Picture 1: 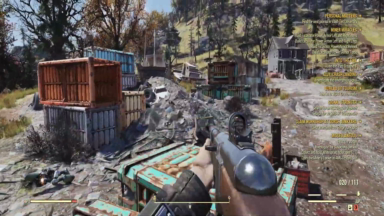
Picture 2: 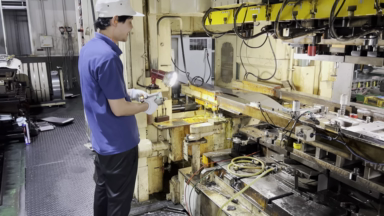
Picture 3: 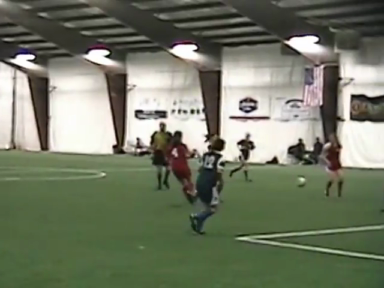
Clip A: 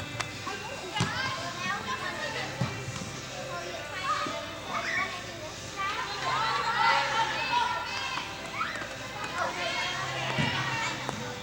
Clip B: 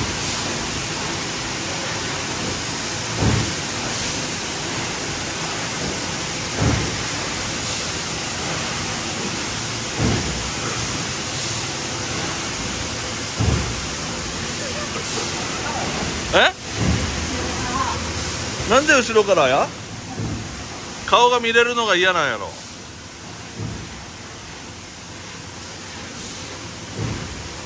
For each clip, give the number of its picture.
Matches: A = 3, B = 2